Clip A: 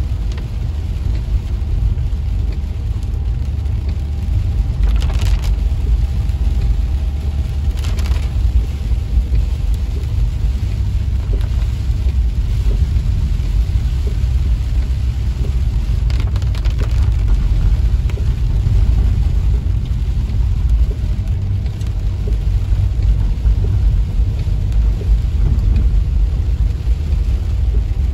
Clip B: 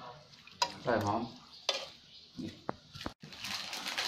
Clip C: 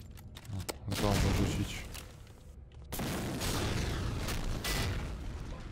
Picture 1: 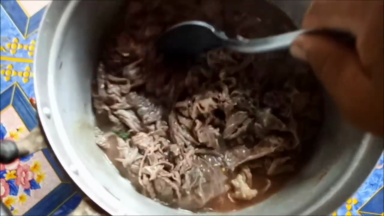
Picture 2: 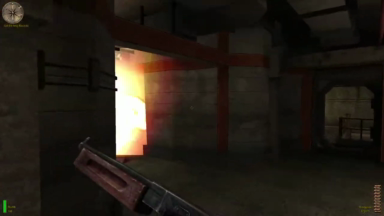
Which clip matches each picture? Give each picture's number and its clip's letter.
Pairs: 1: B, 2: C